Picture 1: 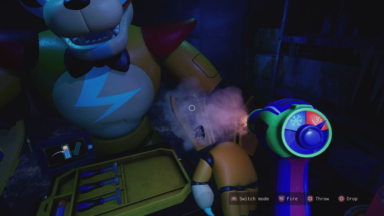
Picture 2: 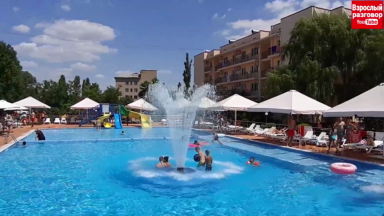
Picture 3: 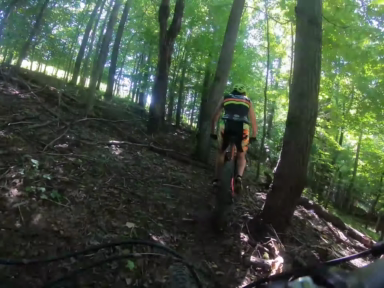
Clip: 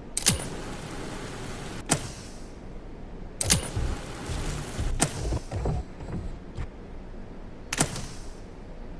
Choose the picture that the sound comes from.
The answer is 1